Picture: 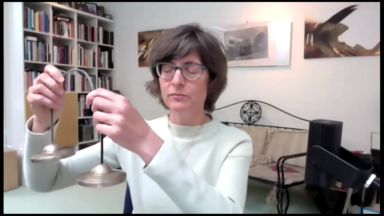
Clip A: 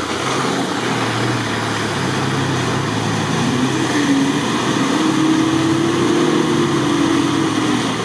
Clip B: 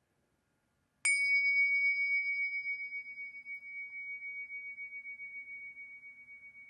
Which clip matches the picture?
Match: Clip B